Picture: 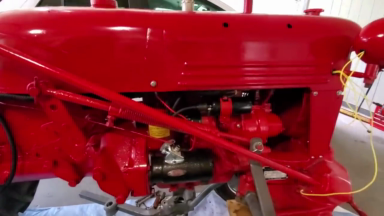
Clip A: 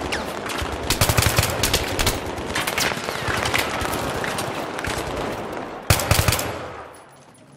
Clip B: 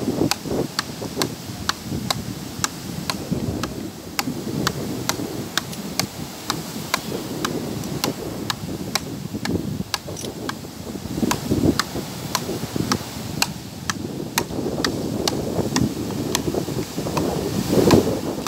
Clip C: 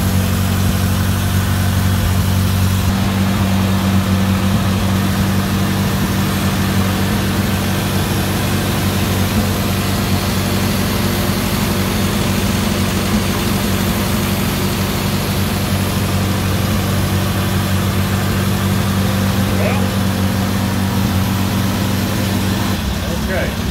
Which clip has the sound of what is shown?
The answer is C